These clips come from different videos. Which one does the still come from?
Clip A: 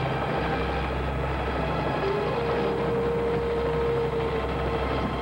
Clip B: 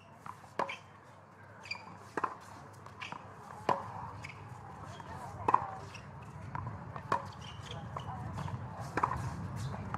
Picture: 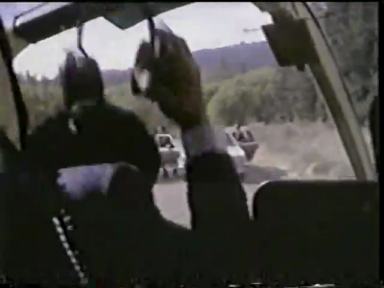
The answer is A